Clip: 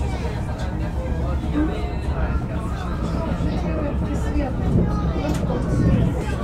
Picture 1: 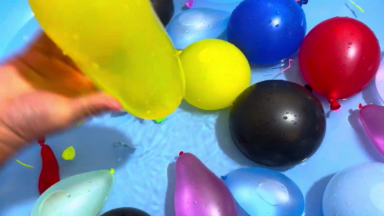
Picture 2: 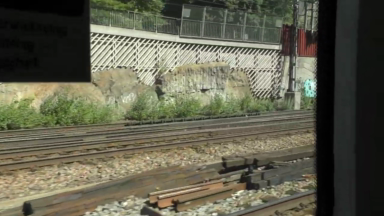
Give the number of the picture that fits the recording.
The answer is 2